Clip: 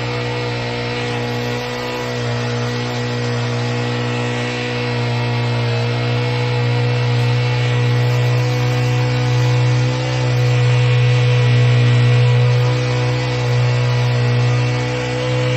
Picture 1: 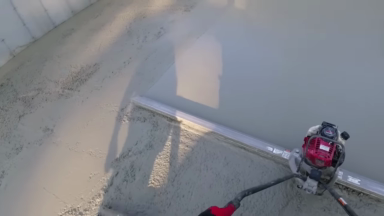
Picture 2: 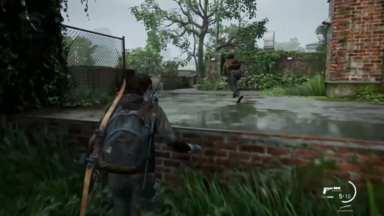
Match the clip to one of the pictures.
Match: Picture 1